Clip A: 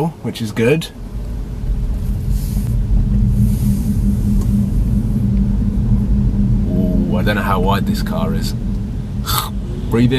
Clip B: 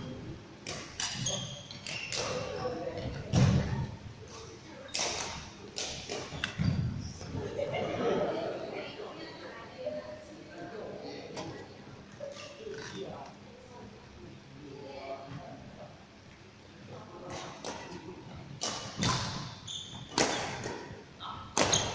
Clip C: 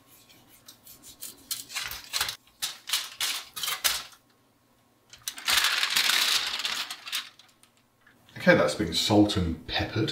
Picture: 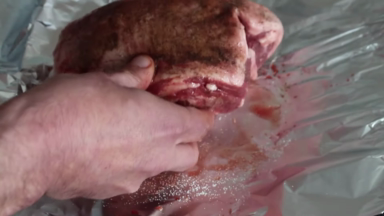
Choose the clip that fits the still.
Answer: C